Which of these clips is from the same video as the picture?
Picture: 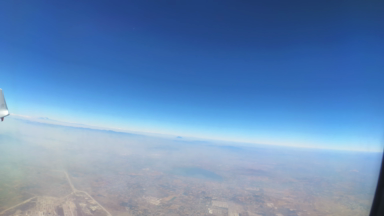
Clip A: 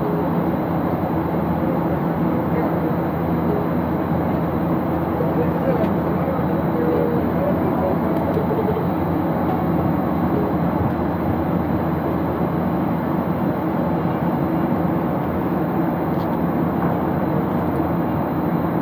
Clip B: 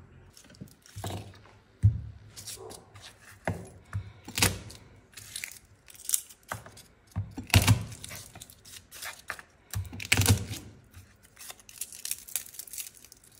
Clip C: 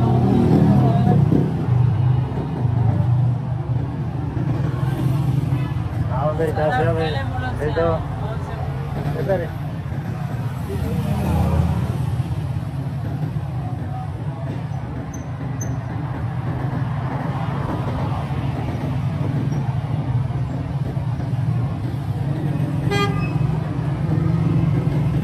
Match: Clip A